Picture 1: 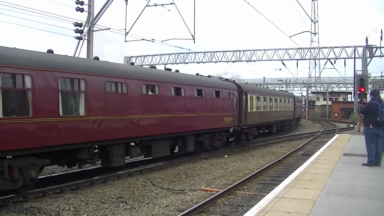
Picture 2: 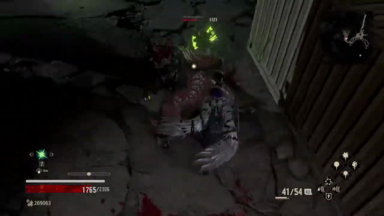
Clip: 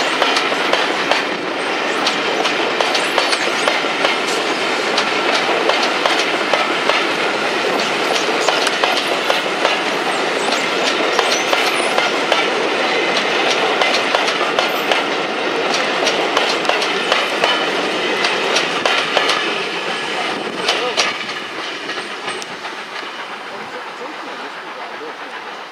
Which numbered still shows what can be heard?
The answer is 1